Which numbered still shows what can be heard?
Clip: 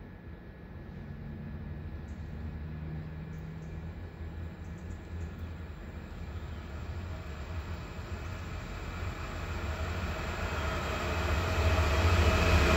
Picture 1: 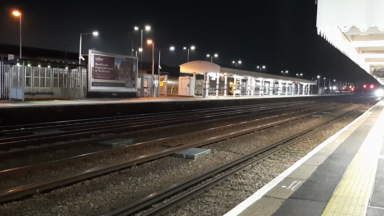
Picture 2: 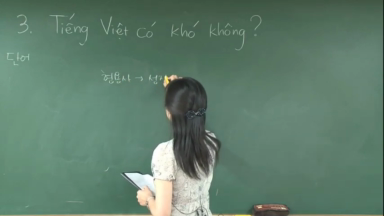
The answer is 1